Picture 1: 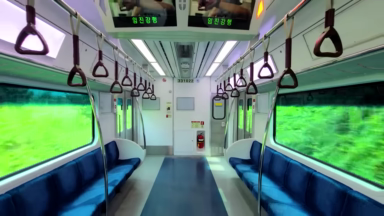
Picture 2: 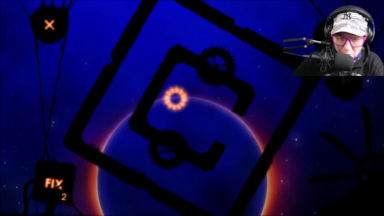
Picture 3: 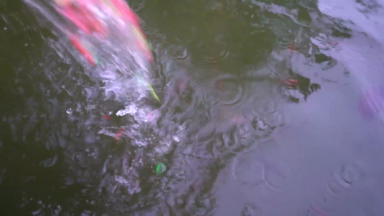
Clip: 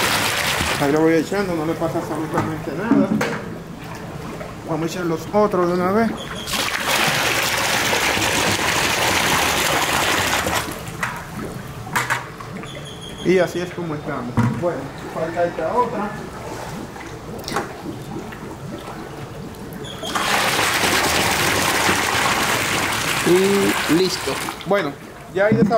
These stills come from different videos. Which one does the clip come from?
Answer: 3